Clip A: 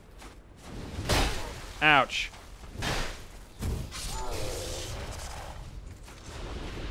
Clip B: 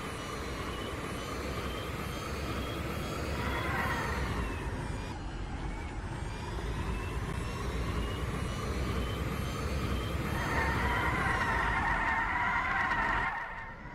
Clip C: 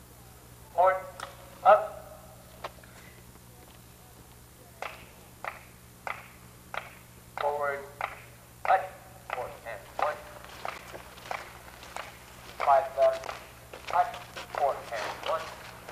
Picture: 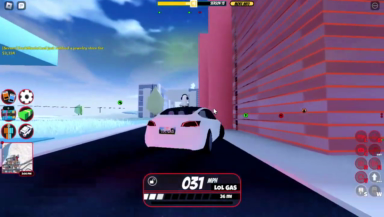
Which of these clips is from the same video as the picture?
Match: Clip B